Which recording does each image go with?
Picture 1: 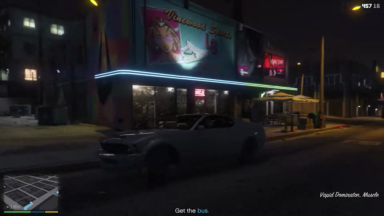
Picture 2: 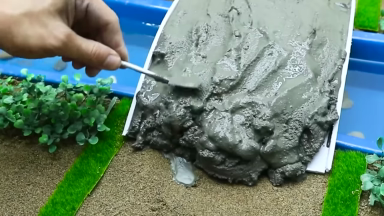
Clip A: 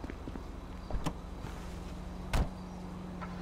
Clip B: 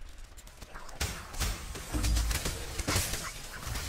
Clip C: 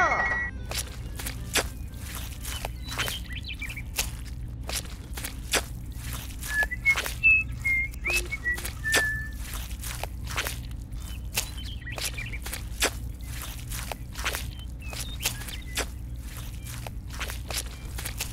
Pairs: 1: A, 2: C